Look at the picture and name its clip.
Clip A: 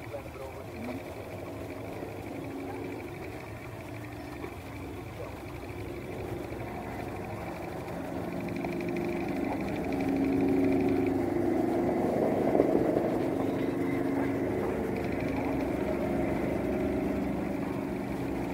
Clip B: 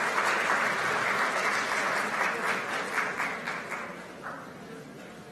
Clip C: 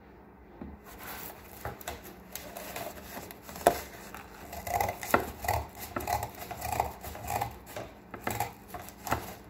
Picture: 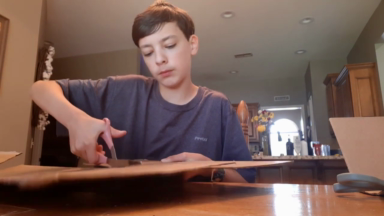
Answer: C